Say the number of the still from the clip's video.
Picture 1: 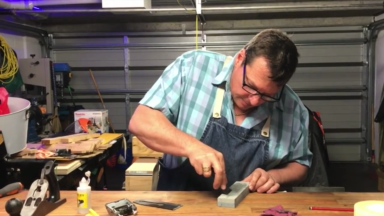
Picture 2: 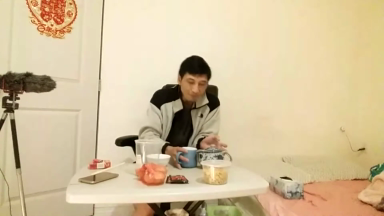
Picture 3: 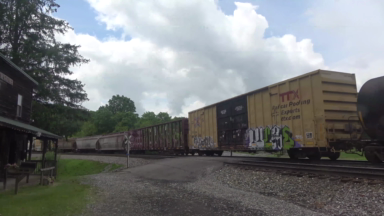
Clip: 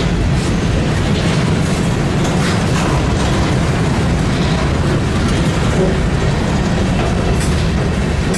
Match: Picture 3